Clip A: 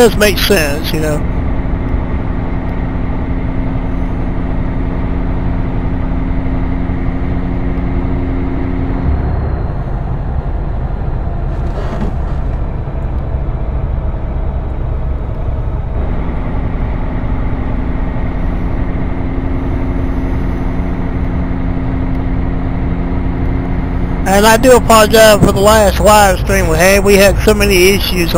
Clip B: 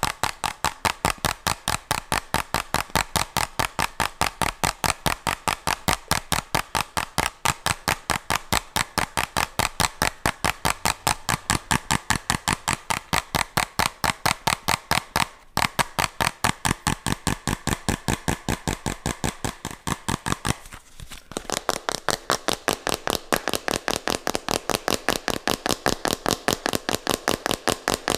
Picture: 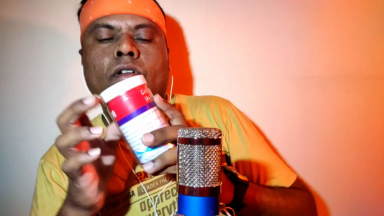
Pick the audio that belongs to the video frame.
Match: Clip B